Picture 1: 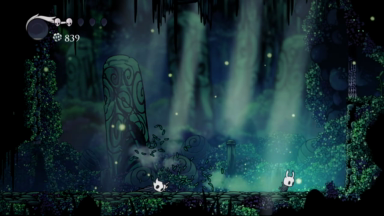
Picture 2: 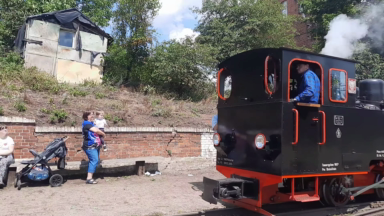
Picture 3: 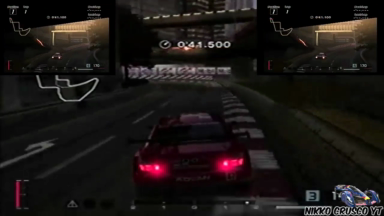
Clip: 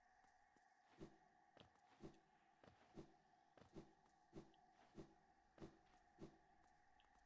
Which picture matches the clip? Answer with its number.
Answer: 1